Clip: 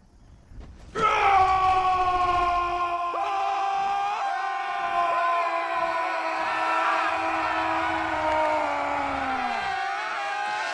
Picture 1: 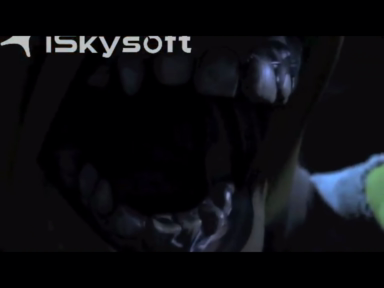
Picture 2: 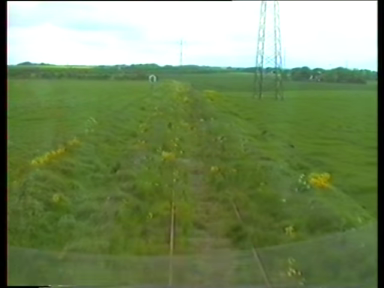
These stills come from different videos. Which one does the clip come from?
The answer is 1